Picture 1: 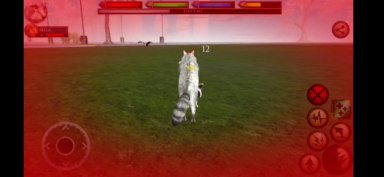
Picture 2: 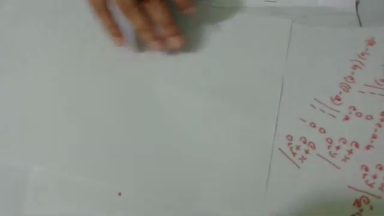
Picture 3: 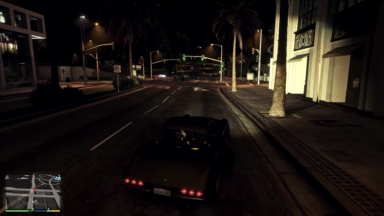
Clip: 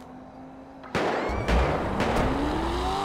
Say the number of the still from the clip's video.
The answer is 3